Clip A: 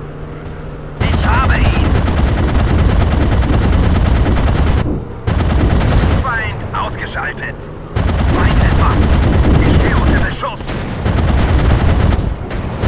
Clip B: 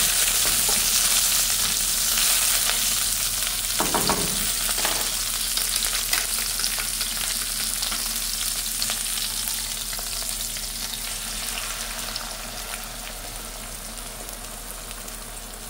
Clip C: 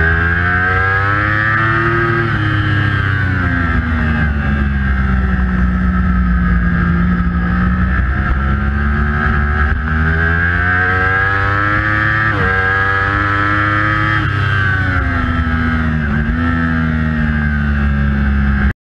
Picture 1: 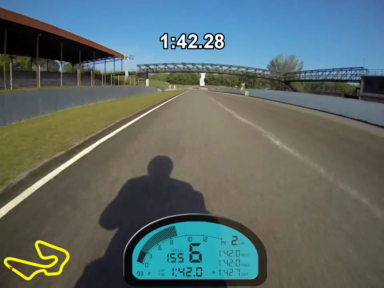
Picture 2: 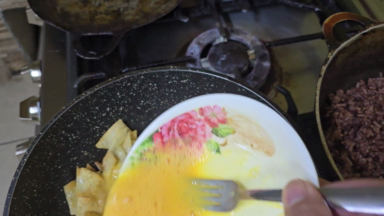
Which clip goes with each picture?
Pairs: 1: C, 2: B